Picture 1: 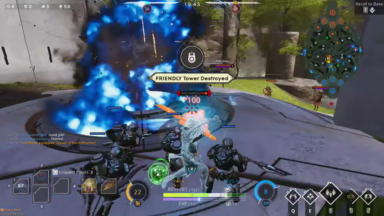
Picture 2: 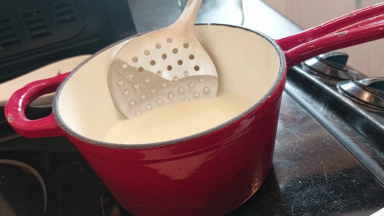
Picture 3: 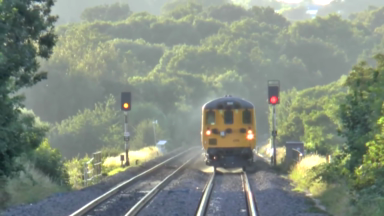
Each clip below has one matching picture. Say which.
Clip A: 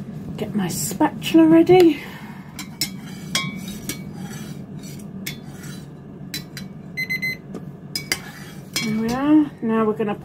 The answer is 2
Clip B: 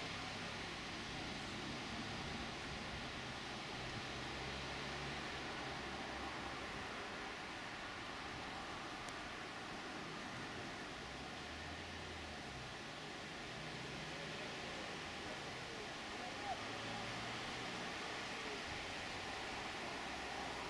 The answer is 3